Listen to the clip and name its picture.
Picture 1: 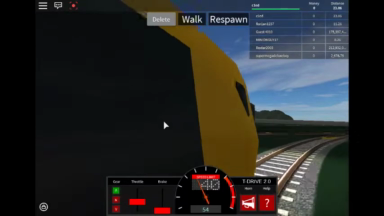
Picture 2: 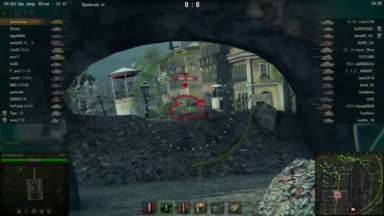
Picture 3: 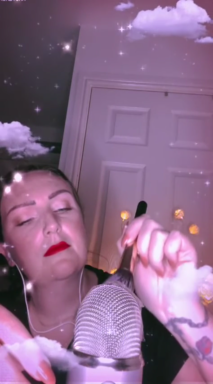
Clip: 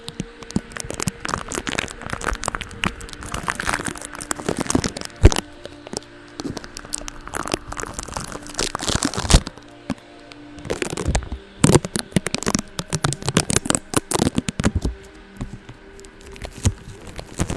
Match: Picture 3